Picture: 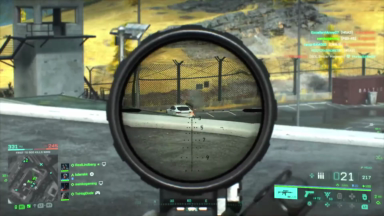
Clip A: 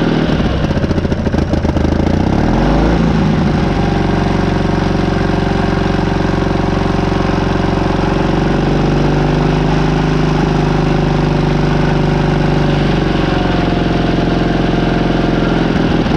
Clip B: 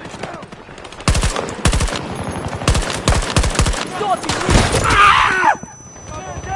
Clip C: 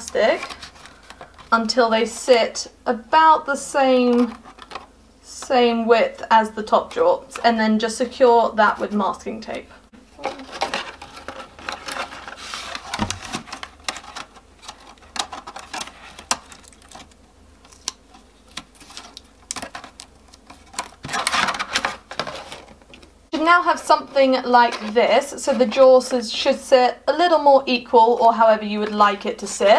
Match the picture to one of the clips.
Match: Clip B